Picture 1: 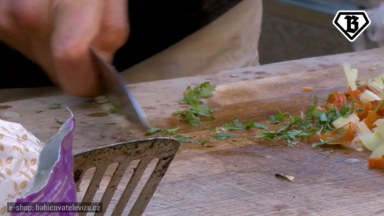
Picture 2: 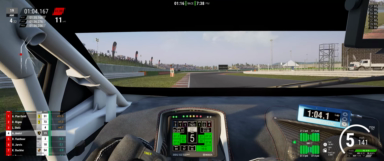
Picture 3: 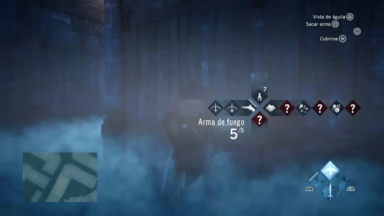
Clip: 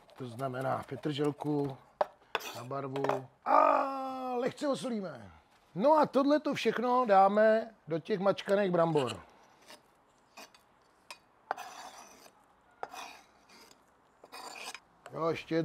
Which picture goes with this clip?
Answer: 1